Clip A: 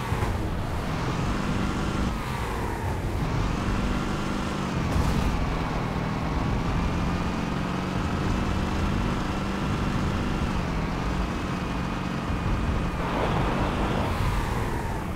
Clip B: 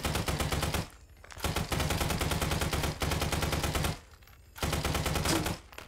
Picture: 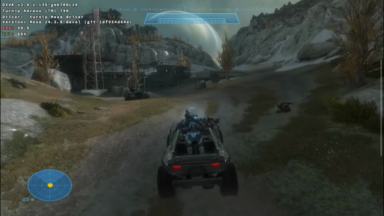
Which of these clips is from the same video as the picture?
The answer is A